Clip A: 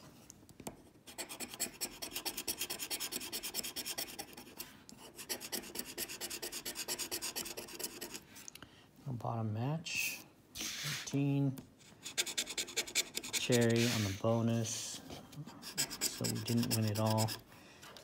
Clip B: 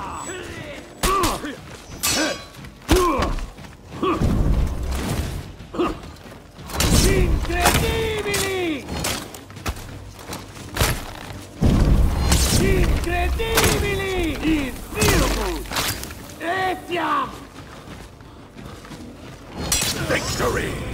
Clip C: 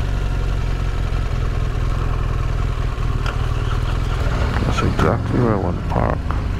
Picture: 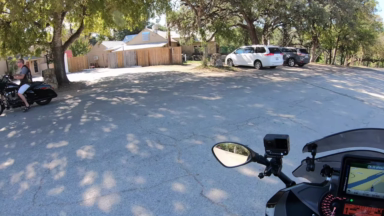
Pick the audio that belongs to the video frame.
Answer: C